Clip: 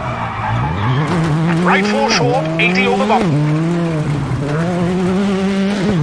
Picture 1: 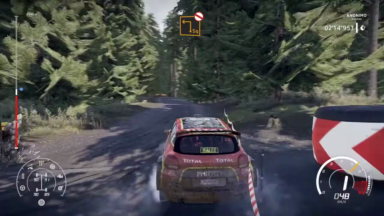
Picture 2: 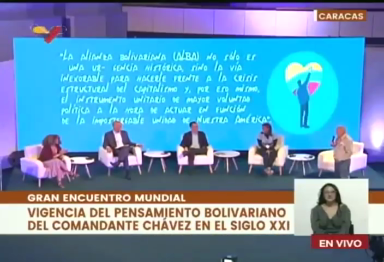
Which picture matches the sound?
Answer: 1